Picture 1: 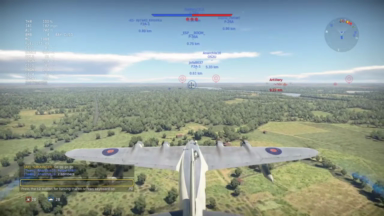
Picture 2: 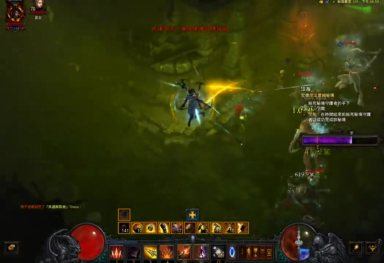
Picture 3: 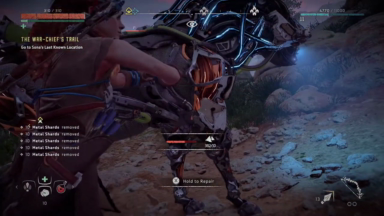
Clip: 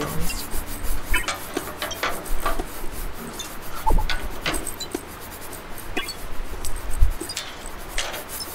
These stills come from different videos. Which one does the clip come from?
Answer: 3